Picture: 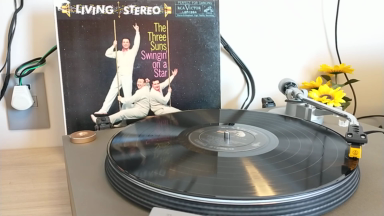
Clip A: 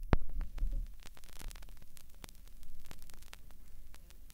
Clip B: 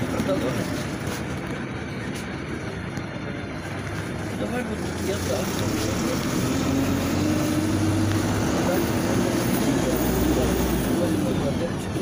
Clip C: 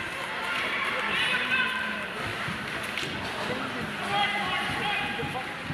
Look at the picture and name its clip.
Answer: A